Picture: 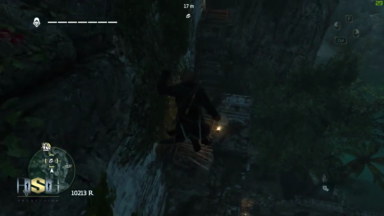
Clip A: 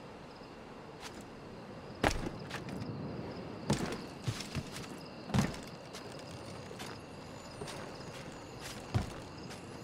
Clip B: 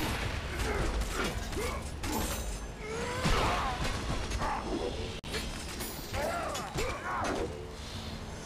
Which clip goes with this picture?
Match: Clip A